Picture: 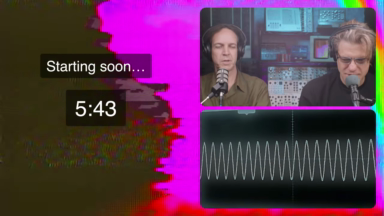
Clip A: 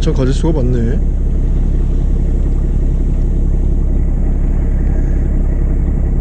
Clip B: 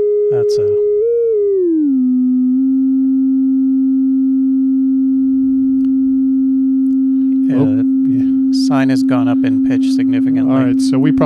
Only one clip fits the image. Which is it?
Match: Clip B